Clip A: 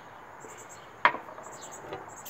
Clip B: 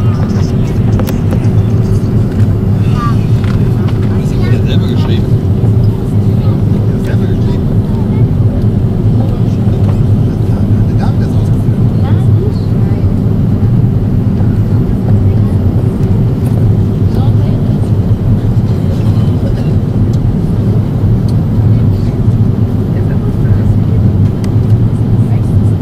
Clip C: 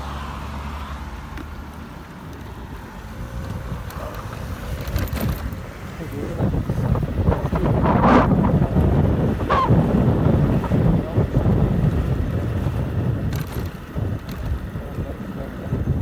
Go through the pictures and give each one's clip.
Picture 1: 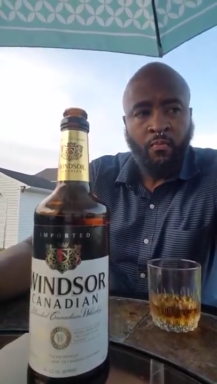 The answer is A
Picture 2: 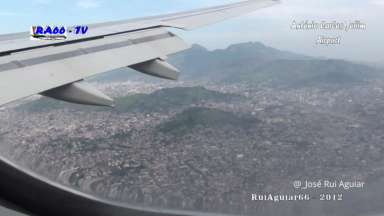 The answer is B